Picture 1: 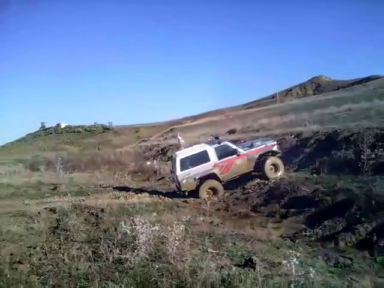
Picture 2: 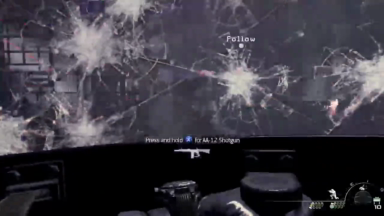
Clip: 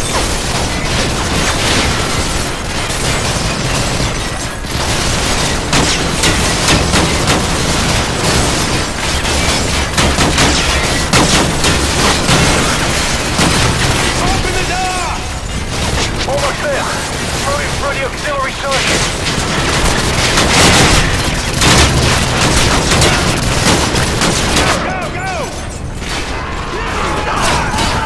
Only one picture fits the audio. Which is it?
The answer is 2